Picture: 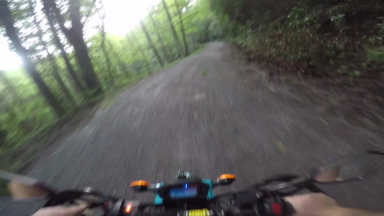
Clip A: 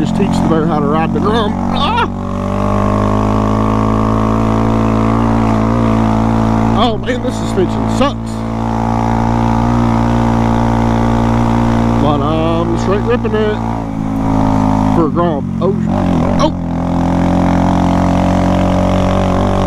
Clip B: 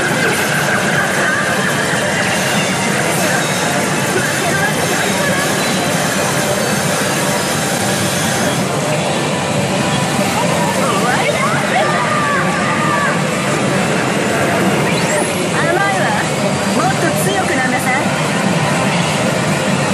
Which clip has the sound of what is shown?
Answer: A